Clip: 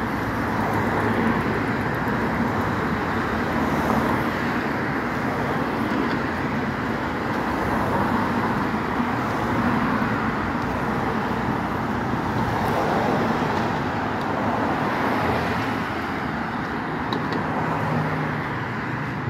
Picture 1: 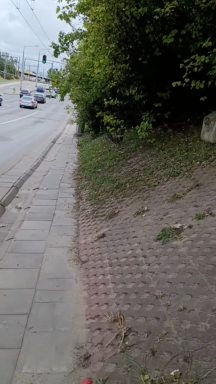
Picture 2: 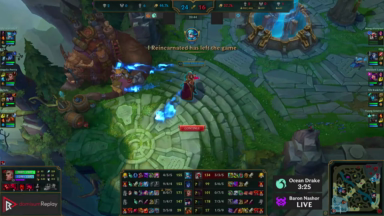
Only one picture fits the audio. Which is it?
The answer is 1